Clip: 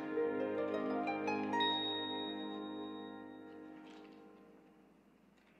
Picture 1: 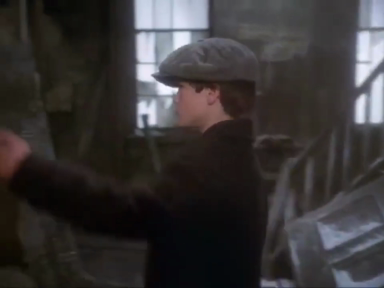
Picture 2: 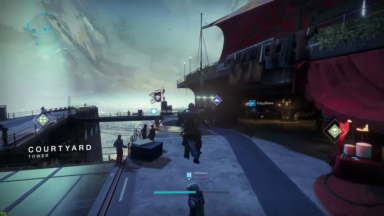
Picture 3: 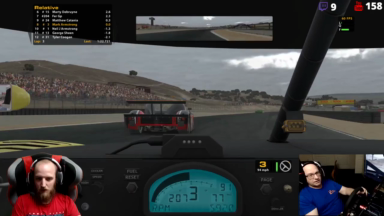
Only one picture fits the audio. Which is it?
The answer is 1